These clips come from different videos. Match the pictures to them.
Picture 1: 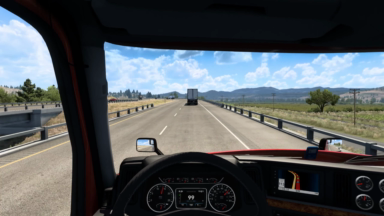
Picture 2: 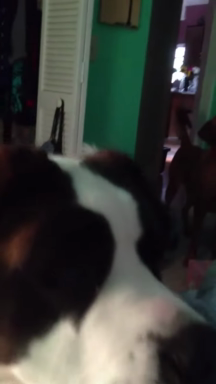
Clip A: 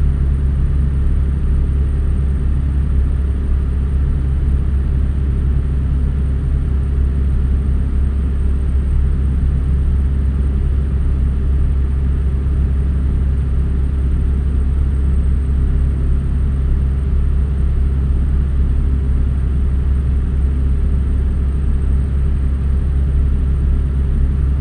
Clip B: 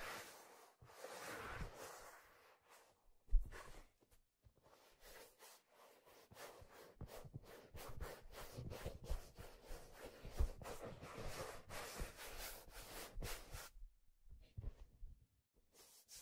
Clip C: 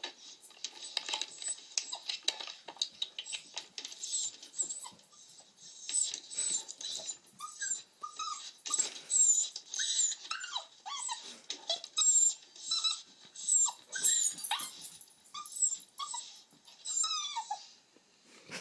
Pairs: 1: A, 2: C